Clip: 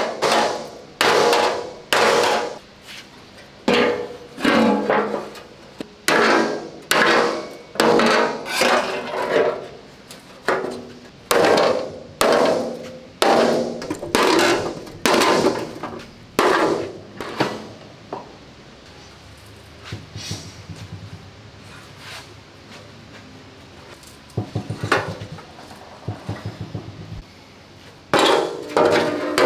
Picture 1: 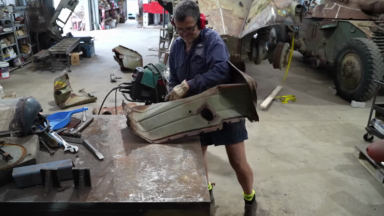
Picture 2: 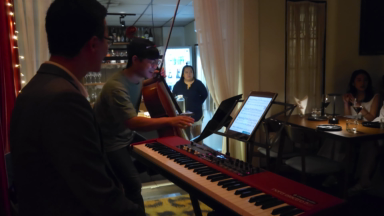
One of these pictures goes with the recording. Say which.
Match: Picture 1